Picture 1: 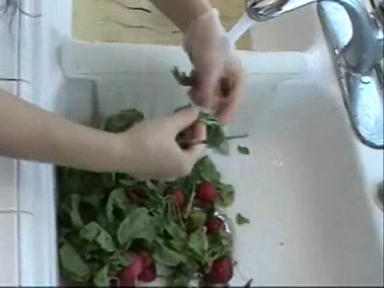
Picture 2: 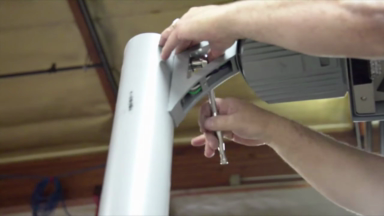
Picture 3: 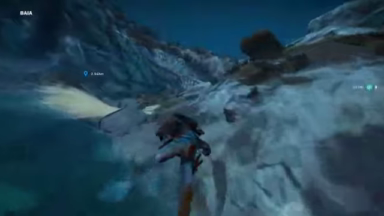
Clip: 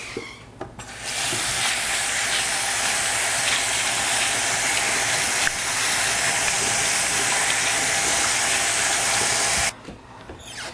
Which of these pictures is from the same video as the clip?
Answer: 1